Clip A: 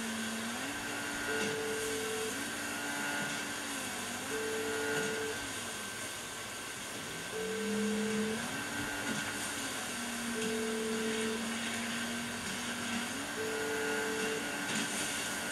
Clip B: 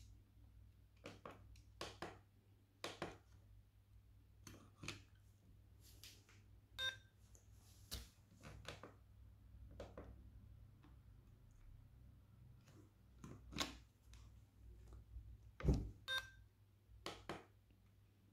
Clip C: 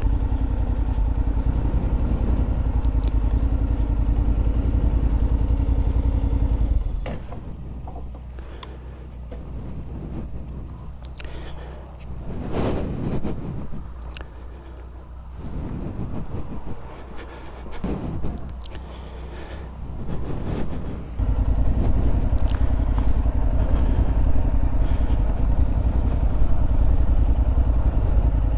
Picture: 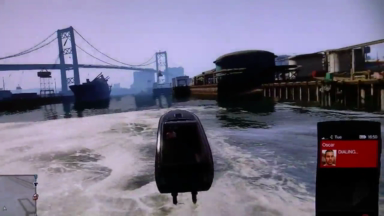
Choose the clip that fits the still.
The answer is A